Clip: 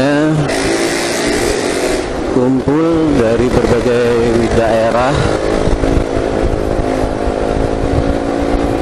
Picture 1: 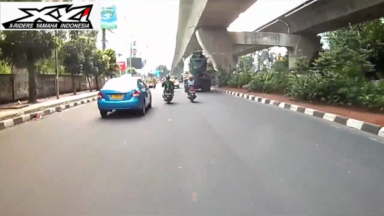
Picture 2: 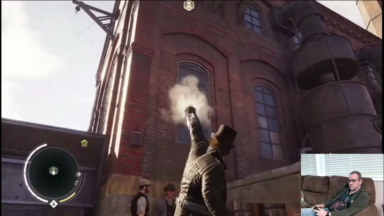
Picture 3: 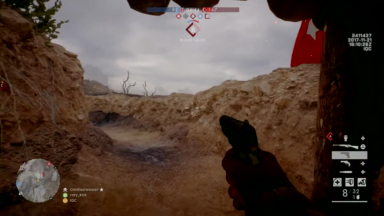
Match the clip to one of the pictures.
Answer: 1